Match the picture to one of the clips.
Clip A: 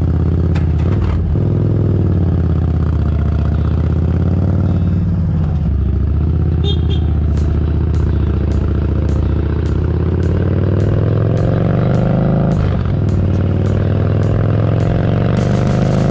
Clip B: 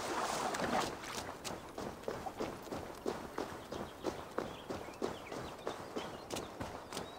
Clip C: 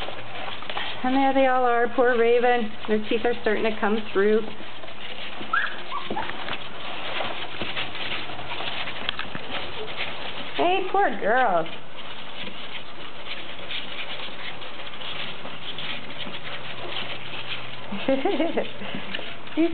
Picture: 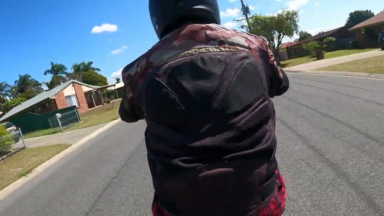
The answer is A